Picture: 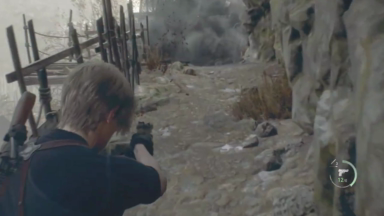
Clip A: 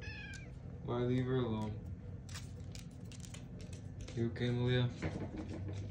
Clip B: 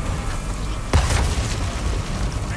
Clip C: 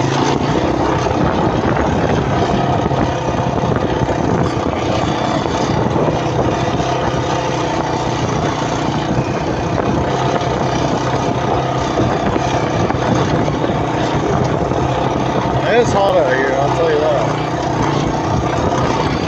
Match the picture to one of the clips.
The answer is B